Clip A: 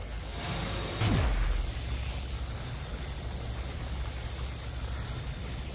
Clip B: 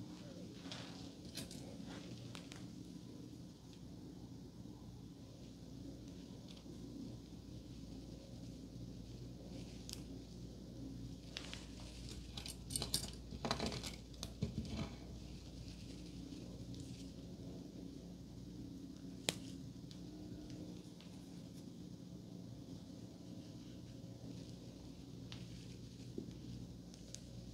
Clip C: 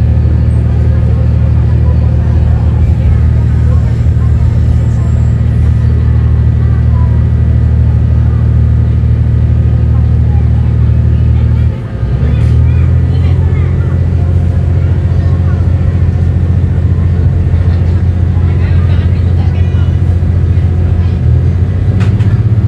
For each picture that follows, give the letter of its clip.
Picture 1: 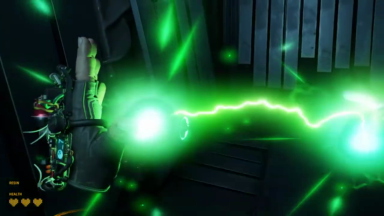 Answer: A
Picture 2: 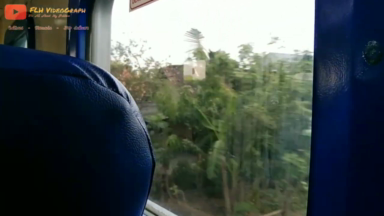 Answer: C